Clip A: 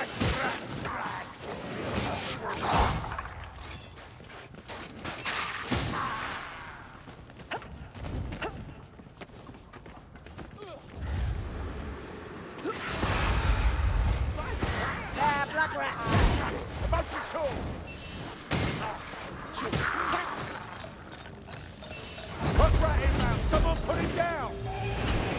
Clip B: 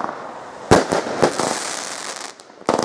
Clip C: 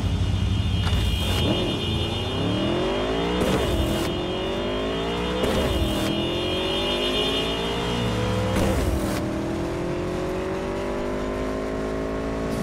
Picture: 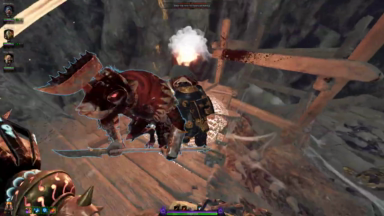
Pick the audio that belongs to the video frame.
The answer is A